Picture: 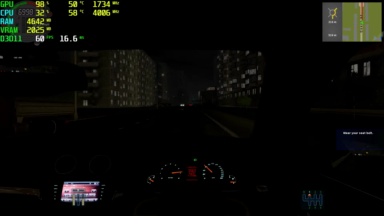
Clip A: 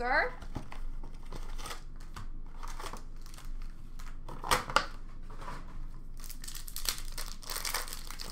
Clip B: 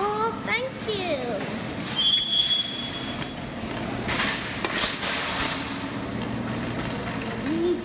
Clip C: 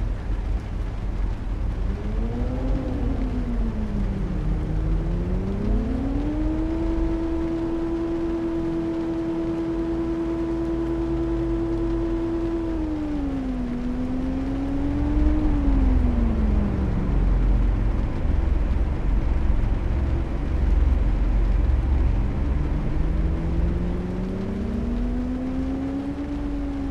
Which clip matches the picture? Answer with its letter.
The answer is C